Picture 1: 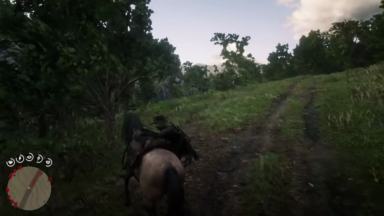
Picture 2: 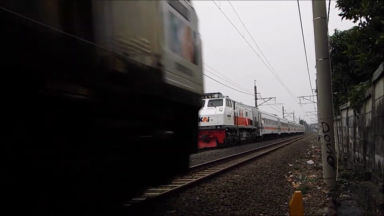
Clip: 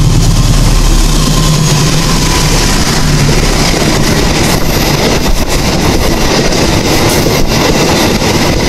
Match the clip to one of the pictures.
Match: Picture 2